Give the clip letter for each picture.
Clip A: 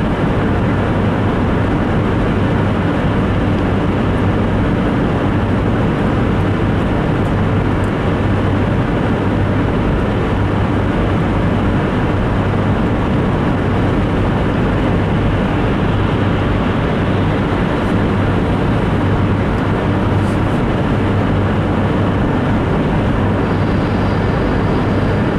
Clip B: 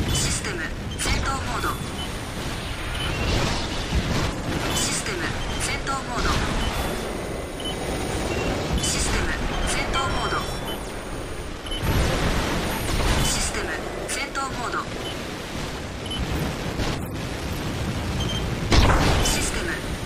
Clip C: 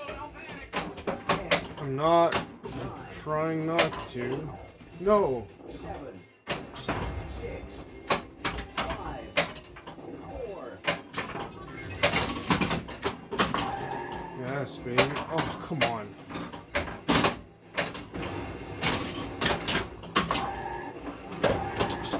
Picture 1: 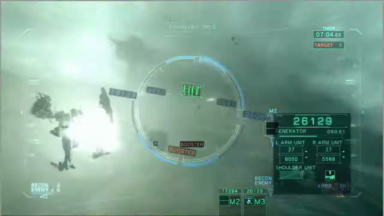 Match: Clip B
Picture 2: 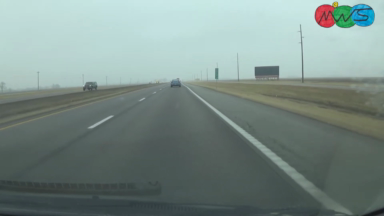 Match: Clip A